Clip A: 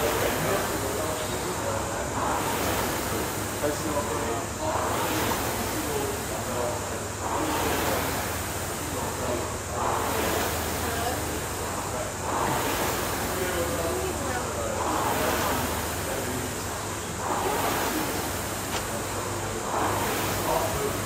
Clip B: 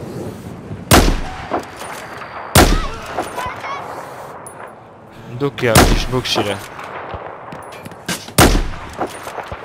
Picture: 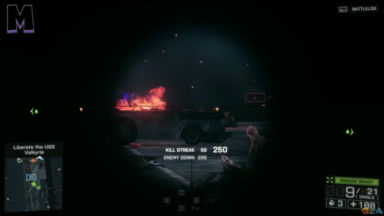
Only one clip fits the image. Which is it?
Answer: B